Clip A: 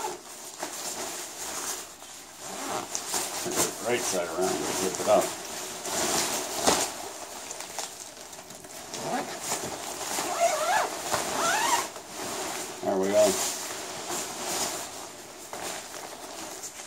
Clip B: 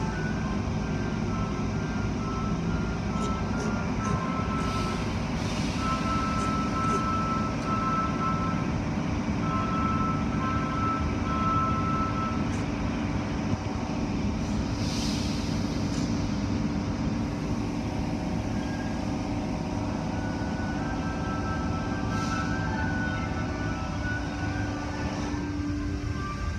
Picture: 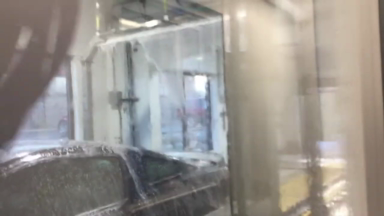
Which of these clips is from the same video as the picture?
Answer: B